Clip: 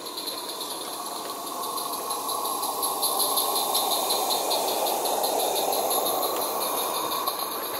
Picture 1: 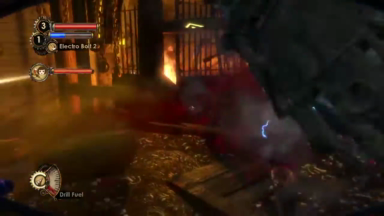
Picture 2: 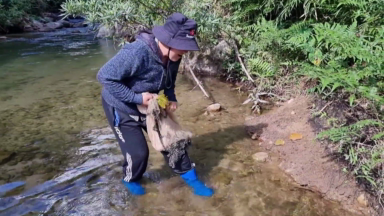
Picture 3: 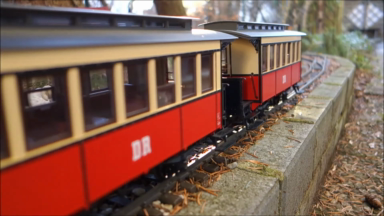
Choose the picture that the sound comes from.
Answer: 3